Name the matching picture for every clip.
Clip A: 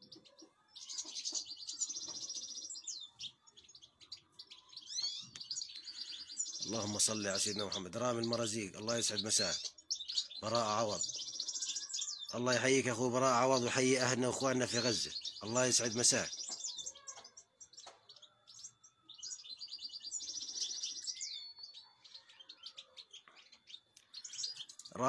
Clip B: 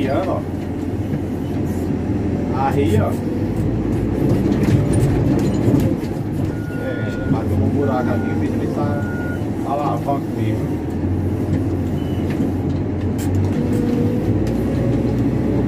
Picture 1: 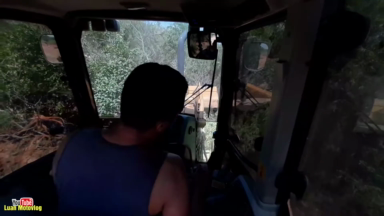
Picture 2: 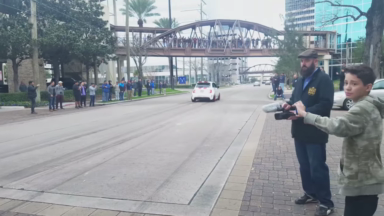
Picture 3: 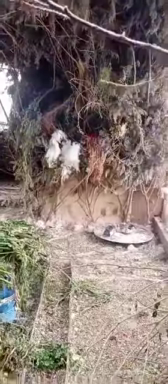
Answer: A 3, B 1